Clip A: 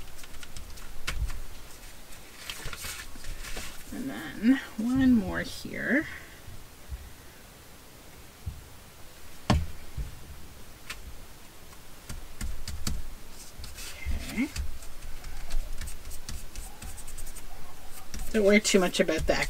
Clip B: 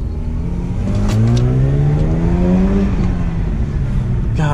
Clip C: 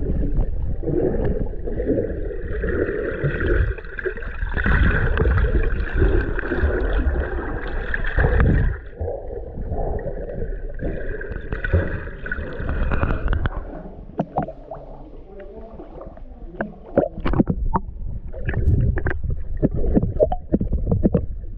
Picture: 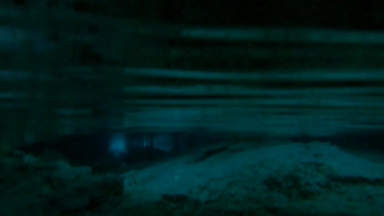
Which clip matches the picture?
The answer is C